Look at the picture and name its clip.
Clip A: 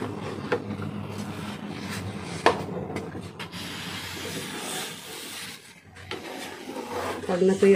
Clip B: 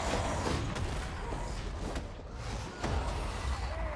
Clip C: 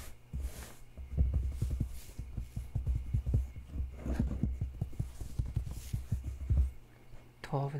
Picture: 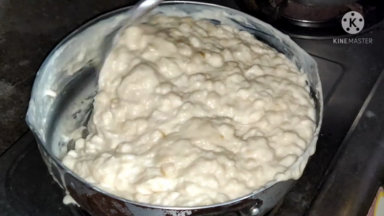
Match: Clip A